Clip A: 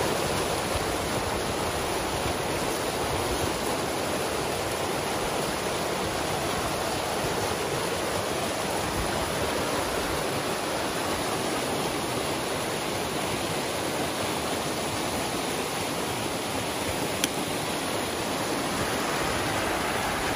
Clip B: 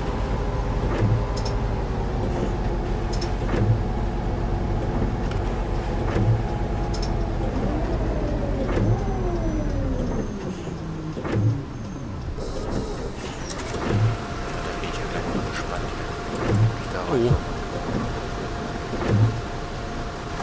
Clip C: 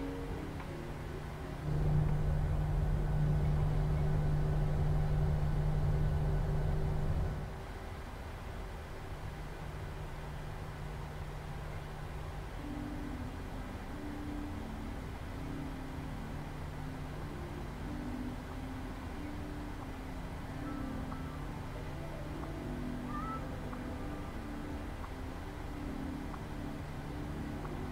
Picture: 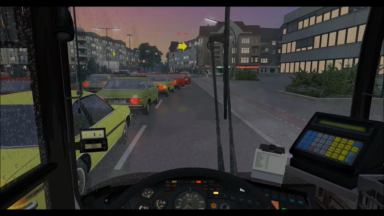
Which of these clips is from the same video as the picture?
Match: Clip B